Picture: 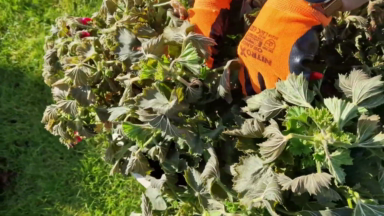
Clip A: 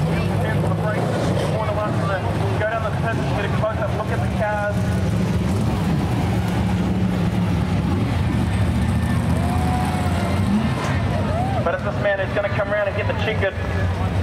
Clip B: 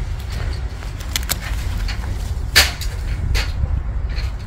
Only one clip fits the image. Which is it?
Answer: B